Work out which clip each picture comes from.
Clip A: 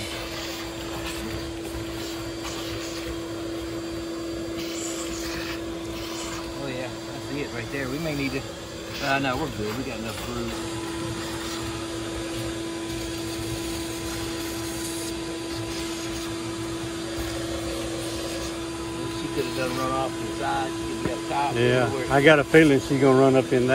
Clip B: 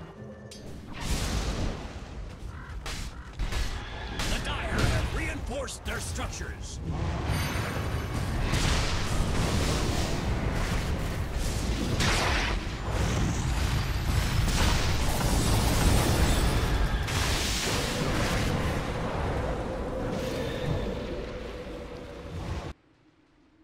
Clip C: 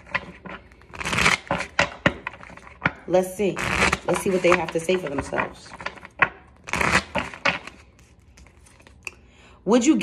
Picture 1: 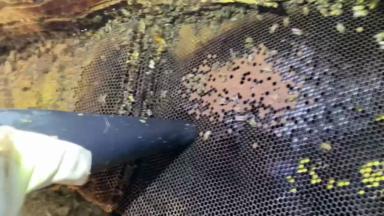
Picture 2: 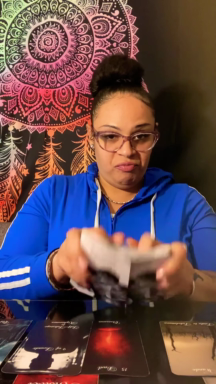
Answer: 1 A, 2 C